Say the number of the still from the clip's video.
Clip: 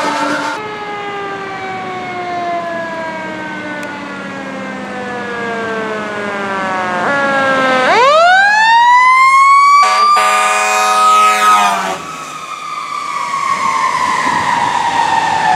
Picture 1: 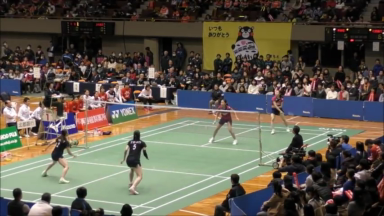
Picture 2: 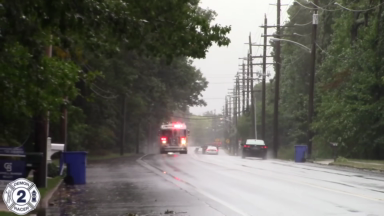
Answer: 2